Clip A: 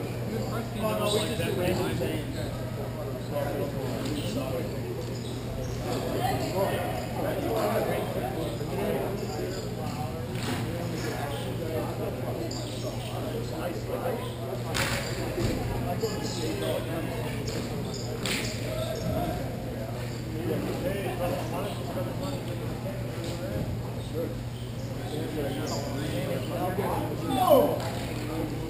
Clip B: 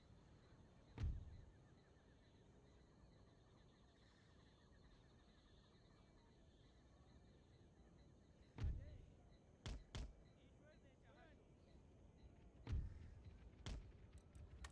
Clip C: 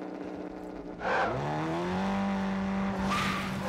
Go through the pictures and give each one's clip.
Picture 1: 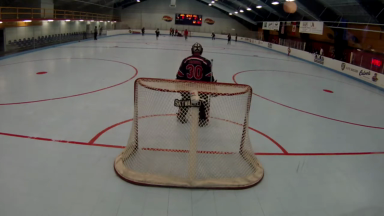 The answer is A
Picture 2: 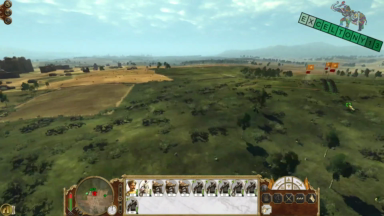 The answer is B